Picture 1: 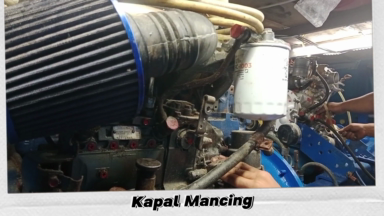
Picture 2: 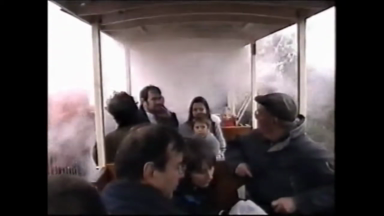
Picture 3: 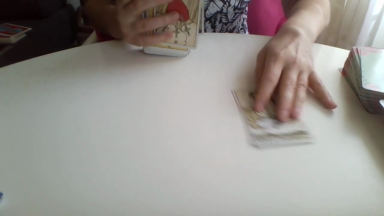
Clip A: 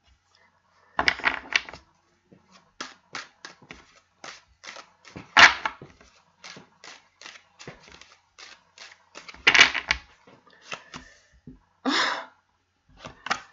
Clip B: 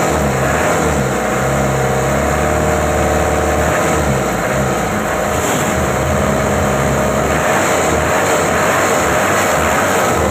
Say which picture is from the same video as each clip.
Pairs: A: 3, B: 1